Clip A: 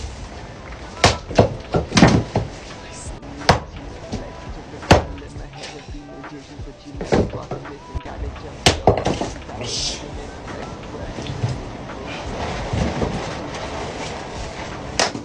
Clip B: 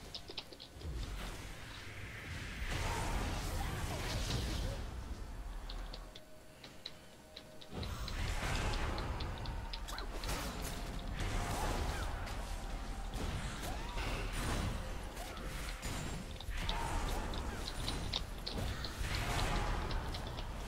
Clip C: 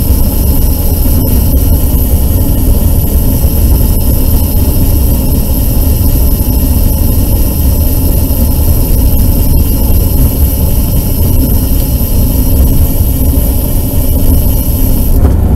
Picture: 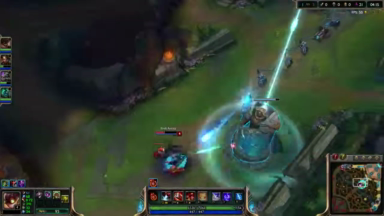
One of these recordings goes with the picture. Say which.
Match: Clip B